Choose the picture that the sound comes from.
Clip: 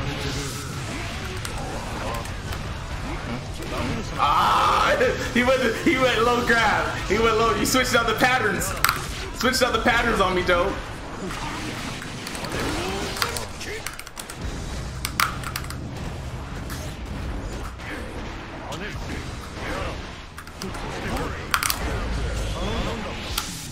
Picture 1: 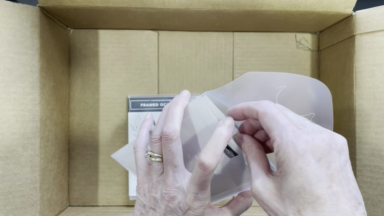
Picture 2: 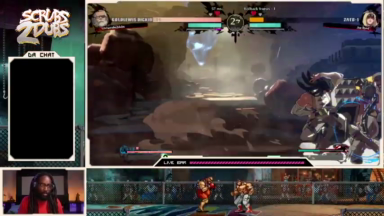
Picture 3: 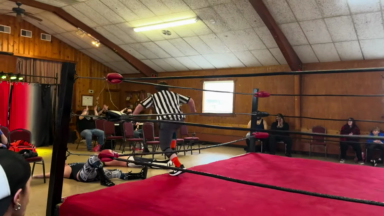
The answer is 2